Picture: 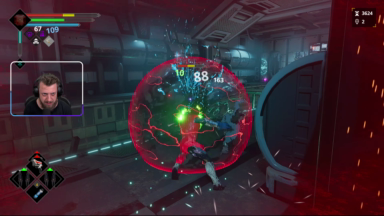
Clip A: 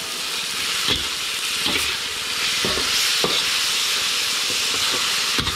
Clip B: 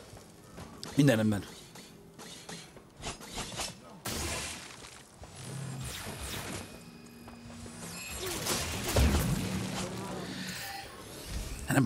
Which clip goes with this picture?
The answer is B